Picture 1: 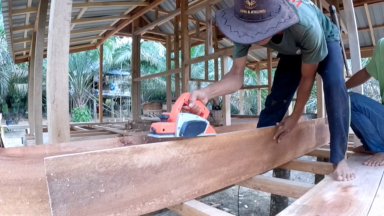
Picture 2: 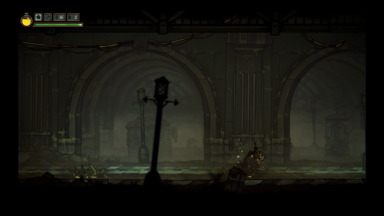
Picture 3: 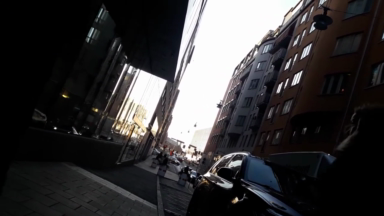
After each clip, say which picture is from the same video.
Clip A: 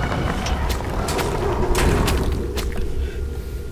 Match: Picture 2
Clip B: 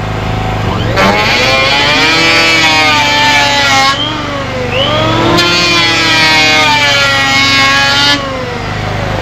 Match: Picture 1